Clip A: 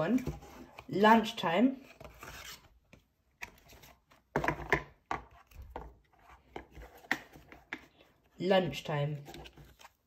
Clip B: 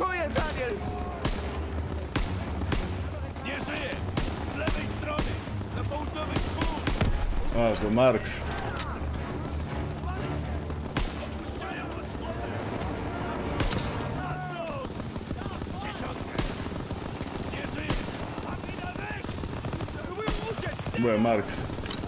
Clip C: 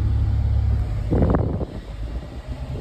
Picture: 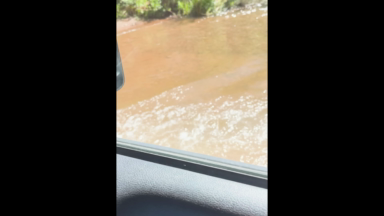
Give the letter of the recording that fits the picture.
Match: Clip C